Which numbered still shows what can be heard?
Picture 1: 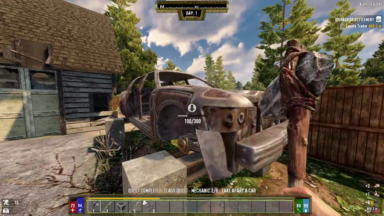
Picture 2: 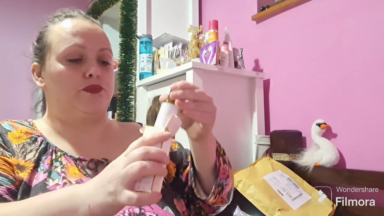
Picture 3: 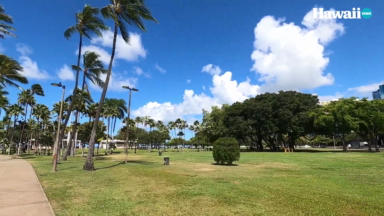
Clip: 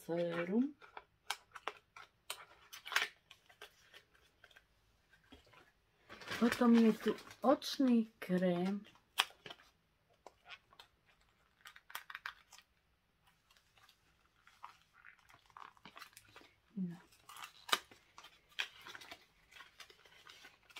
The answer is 2